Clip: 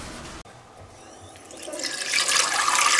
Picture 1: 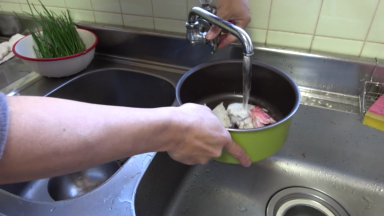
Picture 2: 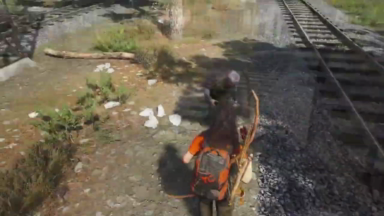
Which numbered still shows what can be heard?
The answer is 1